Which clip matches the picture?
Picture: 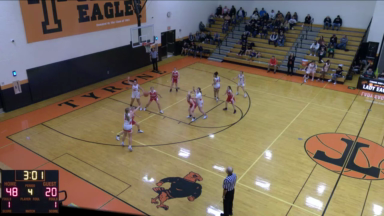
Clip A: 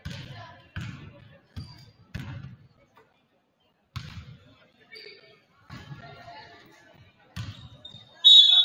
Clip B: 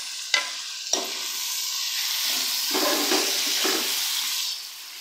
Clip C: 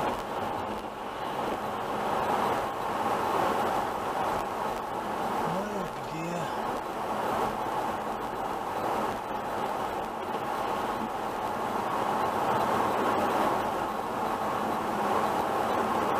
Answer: A